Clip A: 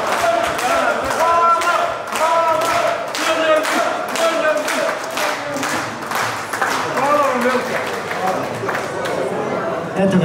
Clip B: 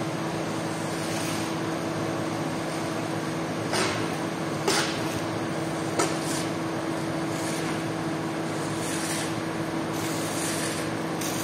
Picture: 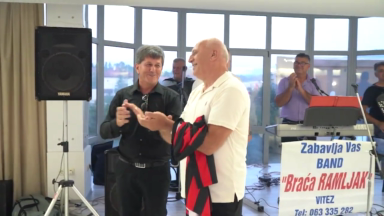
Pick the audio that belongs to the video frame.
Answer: A